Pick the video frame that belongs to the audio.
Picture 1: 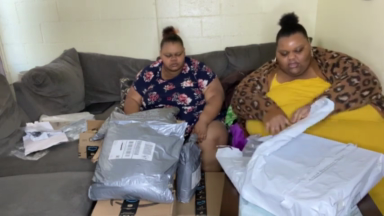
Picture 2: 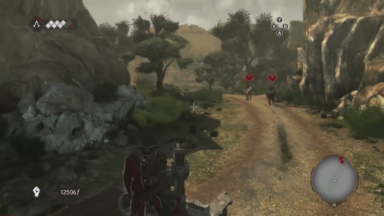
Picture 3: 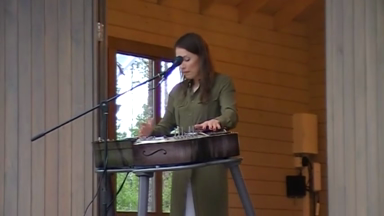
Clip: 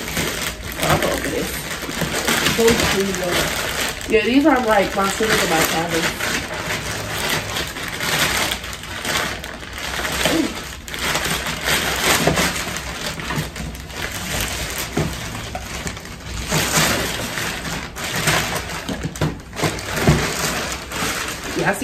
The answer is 1